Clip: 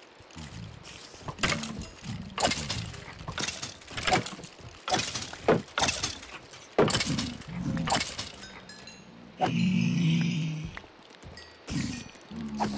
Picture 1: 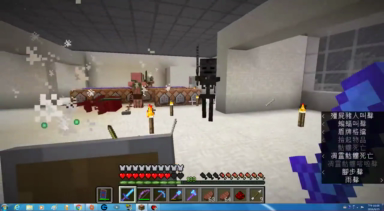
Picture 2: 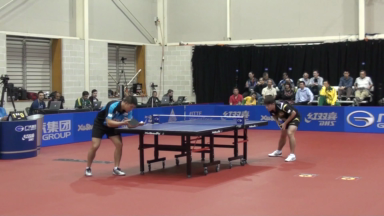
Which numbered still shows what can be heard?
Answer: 1